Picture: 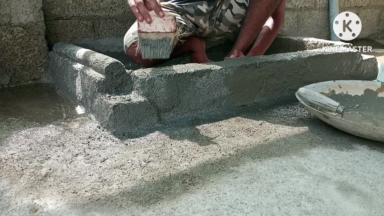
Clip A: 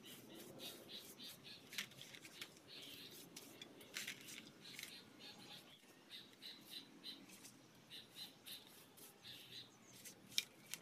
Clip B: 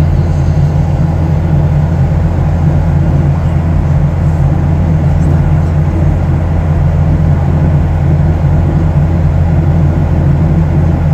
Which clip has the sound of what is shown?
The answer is A